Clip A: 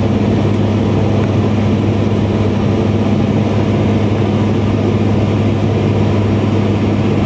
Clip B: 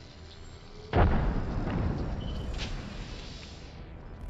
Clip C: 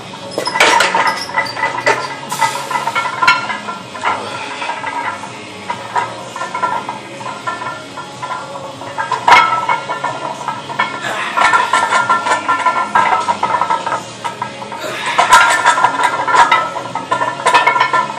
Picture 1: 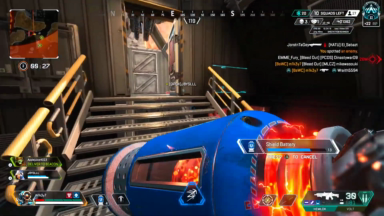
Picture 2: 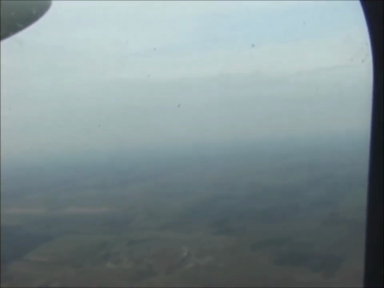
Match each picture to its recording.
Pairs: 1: B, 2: A